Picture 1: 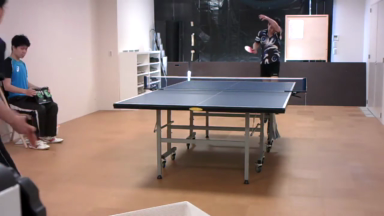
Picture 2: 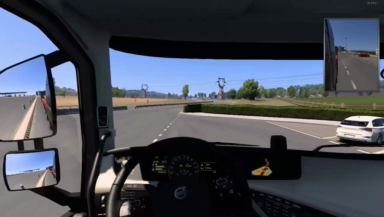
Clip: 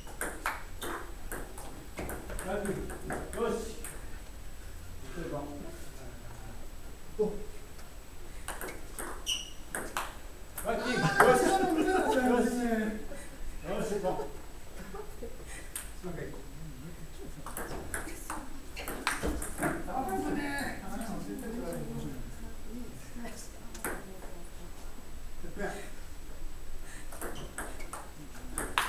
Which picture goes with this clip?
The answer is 1